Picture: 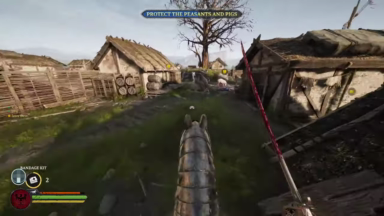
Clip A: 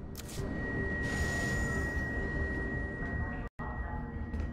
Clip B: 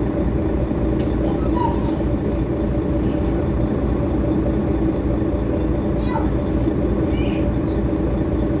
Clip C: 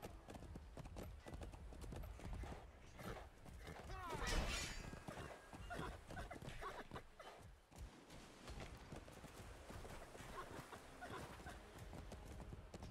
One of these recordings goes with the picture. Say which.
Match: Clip C